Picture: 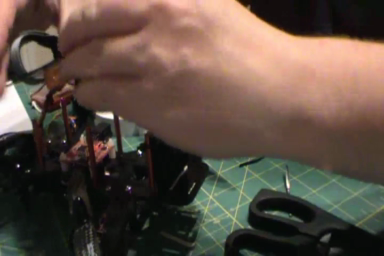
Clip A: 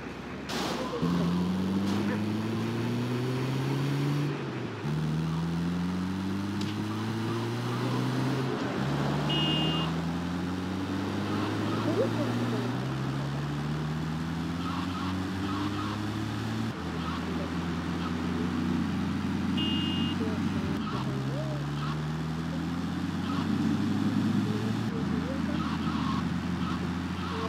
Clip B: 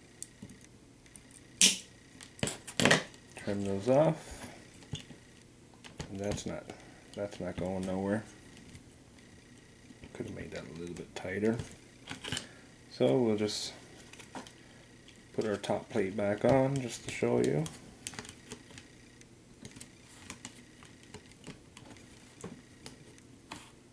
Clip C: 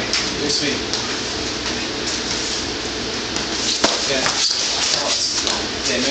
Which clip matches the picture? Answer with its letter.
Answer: B